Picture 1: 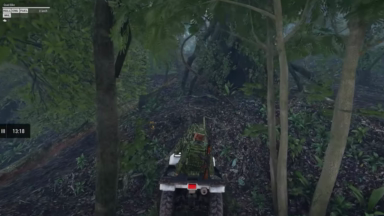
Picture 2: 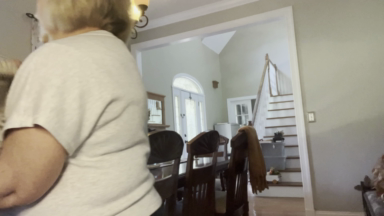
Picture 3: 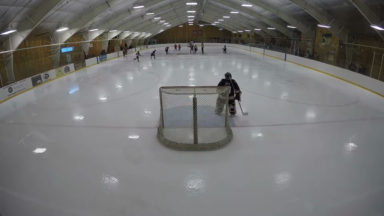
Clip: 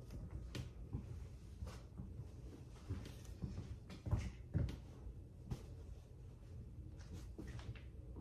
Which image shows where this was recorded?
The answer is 2